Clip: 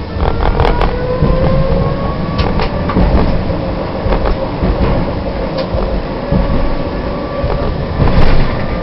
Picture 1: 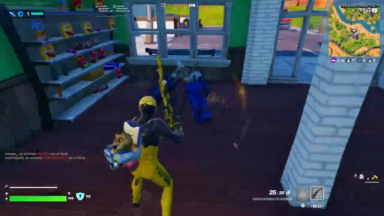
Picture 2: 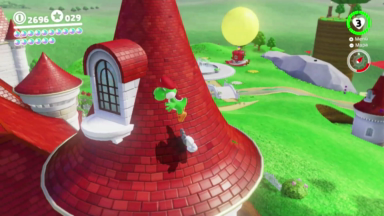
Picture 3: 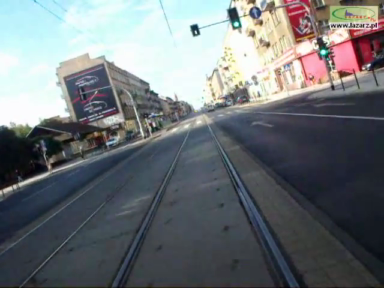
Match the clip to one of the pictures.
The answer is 3